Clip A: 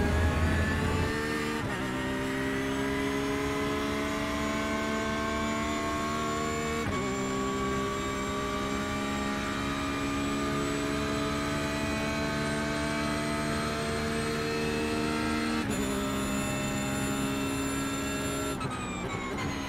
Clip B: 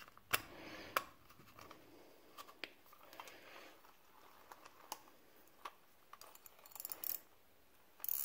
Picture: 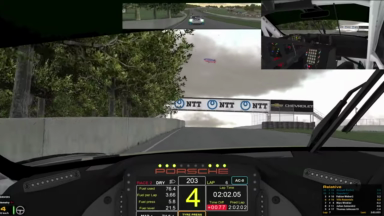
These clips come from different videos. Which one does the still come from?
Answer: A